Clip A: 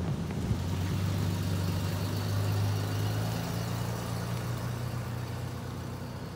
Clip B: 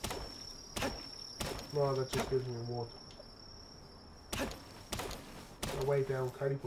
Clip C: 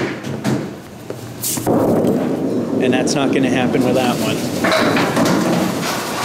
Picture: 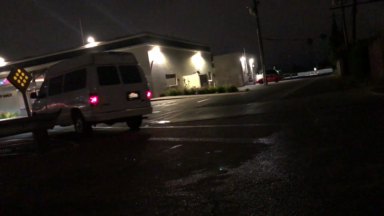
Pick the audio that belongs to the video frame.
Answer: A